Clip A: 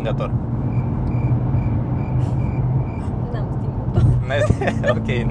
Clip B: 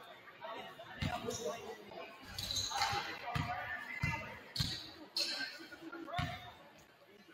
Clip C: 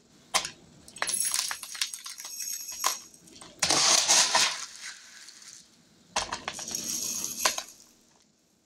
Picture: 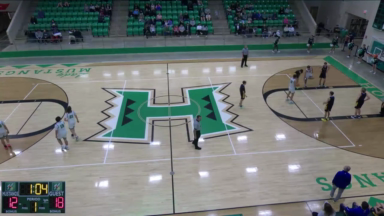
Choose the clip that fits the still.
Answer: B